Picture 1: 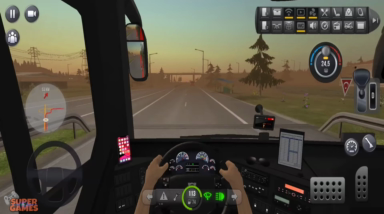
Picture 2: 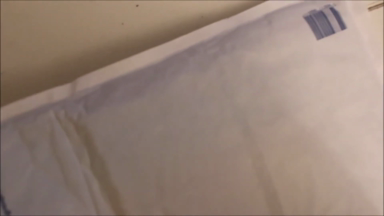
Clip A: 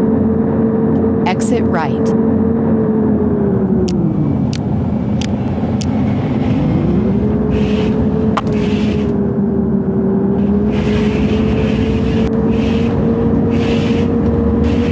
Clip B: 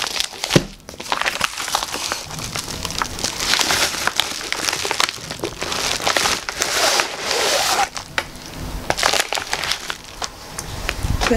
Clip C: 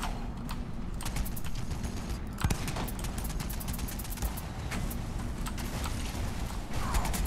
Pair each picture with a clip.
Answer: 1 A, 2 B